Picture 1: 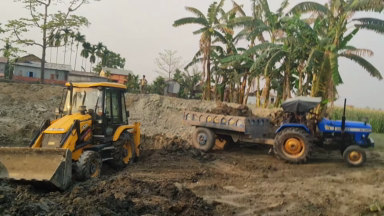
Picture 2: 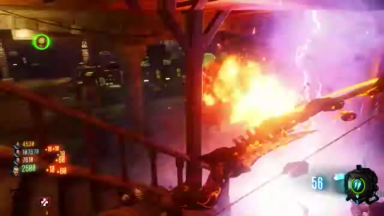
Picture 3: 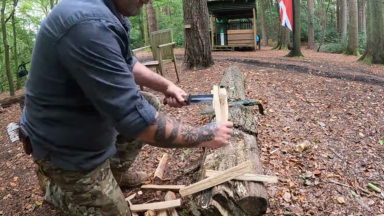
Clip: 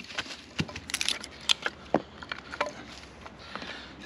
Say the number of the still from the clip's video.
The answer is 3